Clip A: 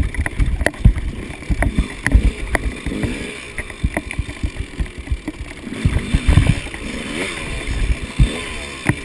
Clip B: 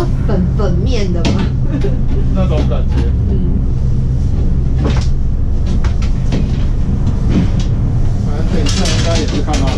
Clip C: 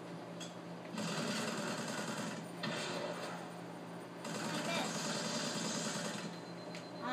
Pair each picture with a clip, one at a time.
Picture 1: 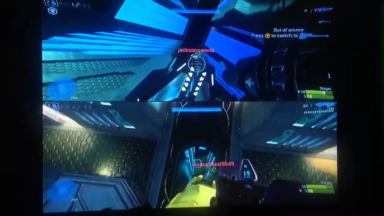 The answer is C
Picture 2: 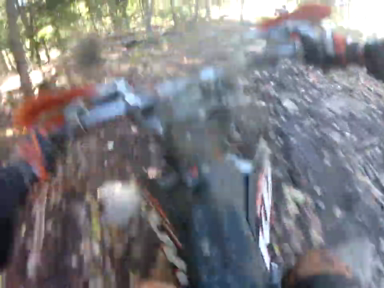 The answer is A